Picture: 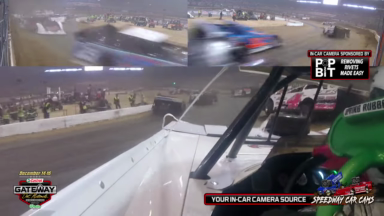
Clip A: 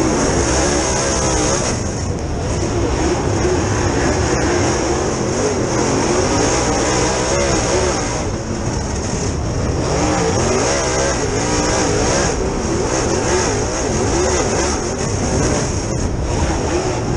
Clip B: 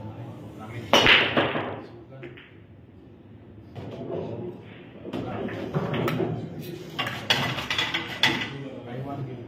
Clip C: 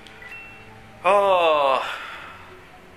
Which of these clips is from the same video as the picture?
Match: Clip A